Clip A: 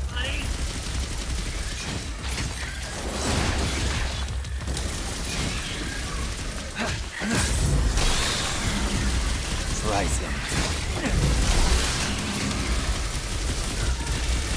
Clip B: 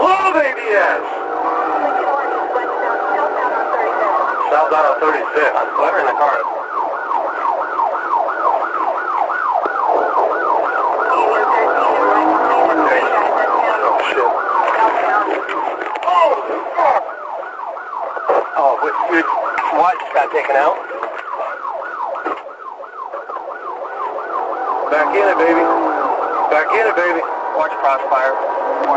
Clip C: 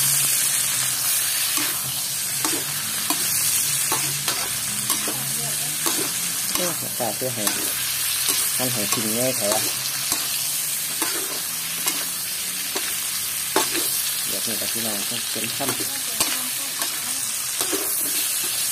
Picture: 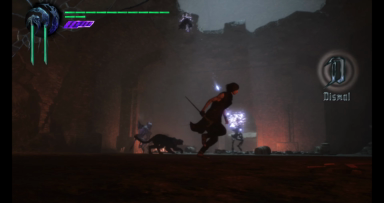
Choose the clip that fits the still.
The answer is A